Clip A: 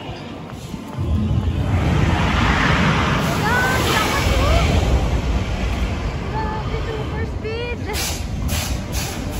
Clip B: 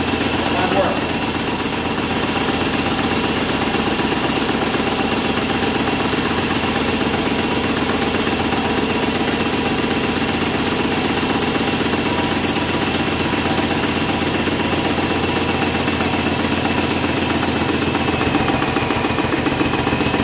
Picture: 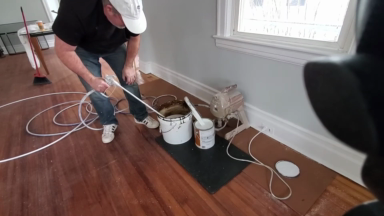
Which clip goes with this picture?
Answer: B